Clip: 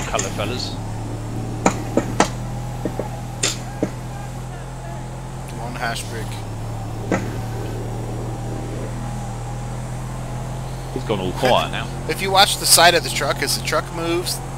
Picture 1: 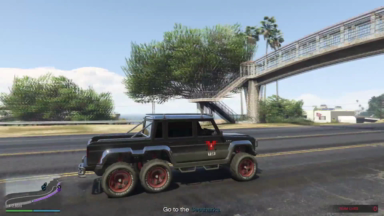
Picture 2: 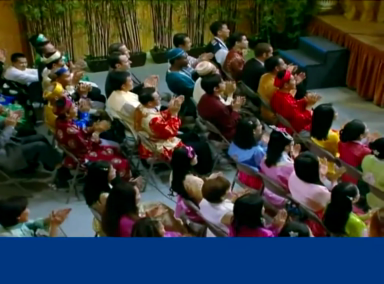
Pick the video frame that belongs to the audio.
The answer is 1